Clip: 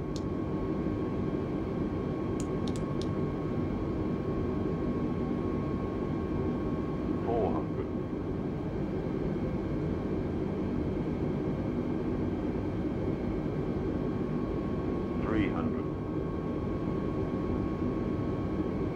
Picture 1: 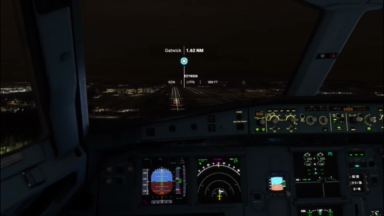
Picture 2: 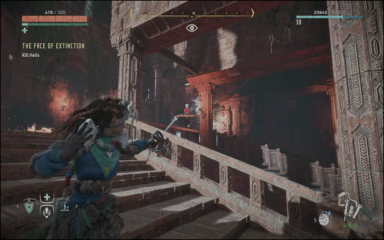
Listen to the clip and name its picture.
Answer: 1